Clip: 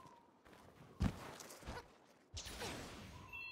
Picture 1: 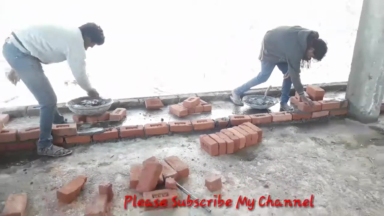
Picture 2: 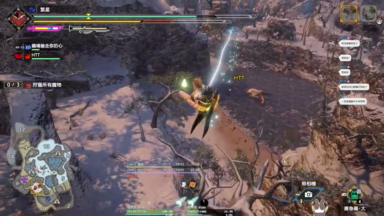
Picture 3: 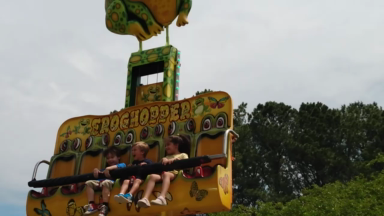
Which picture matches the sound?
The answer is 2